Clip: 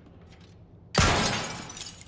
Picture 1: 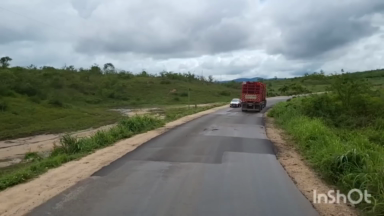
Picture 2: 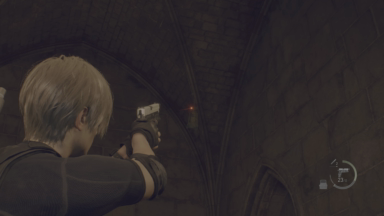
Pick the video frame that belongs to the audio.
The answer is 2